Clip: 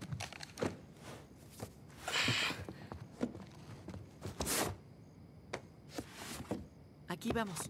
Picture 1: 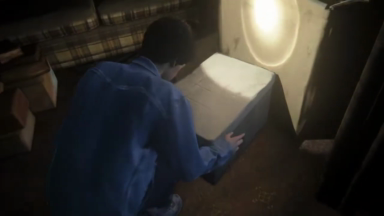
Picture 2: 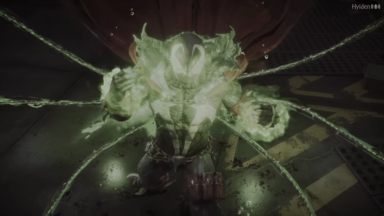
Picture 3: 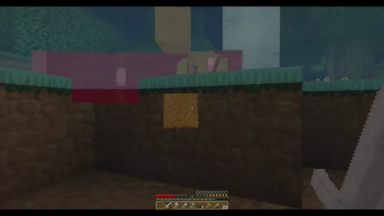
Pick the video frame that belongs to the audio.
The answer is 1